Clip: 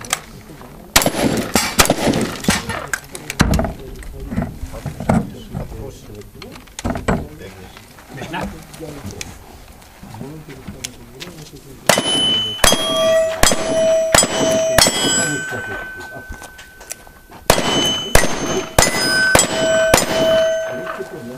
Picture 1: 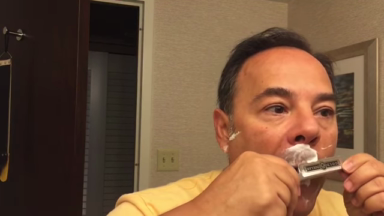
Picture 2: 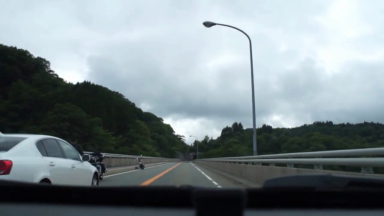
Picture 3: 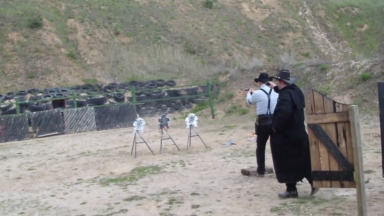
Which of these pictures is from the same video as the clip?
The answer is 3